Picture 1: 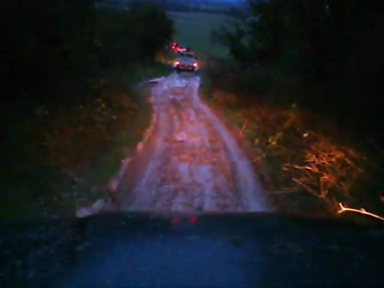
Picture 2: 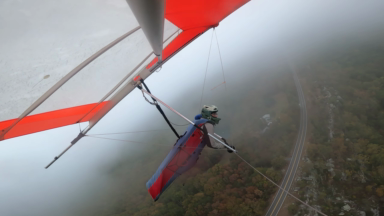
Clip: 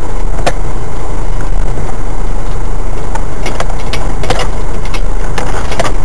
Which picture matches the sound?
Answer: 1